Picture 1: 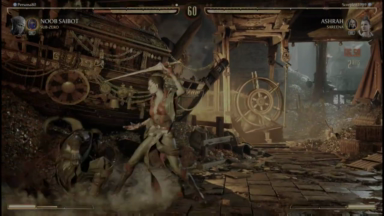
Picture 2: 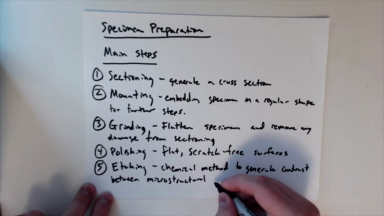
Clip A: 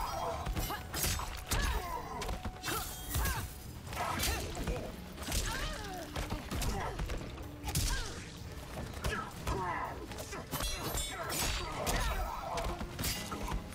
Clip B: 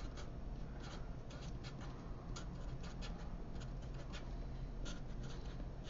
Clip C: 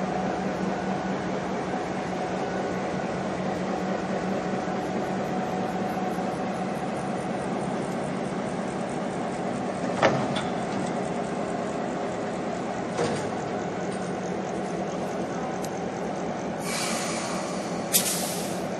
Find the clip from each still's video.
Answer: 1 A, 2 B